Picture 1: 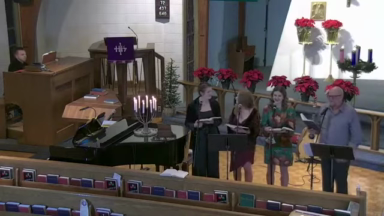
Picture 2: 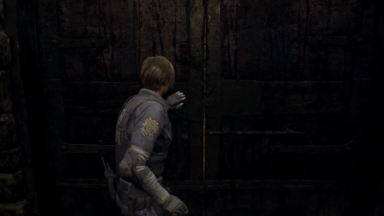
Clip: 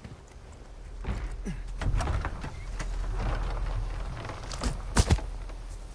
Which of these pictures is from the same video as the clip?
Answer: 2